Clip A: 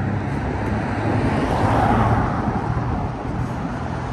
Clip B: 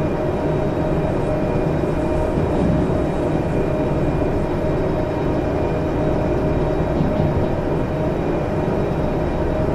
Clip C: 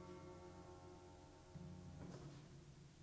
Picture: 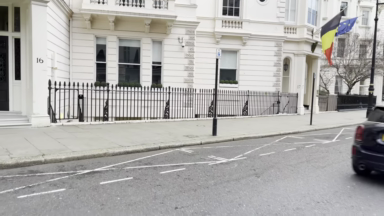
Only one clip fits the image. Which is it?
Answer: A